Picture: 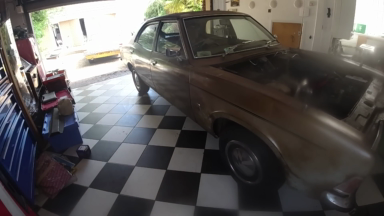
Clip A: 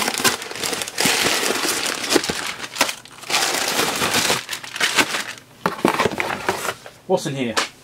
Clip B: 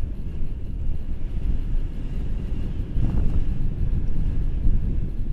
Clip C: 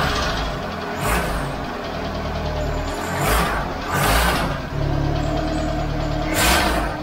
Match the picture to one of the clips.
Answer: C